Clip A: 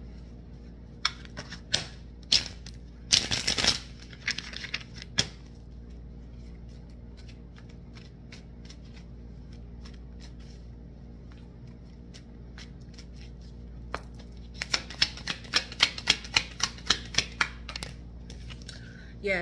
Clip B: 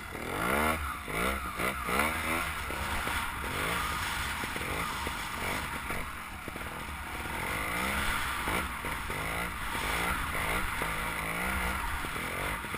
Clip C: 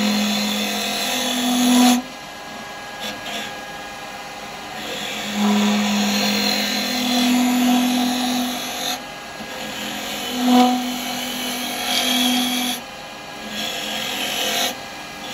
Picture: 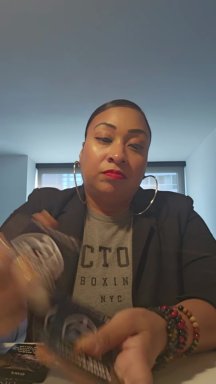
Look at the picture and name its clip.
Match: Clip A